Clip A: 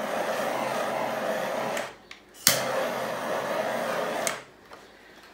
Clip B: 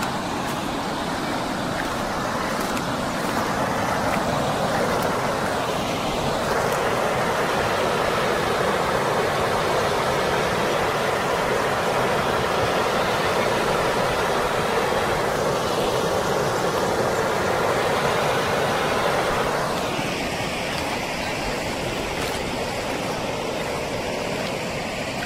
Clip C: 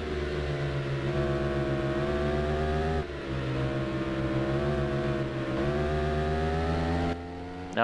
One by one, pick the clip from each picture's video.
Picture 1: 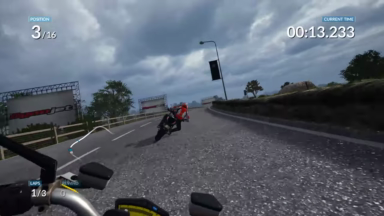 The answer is C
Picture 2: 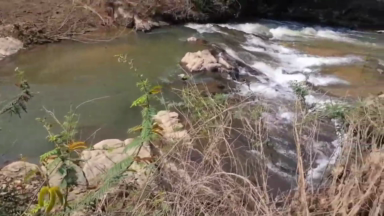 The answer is B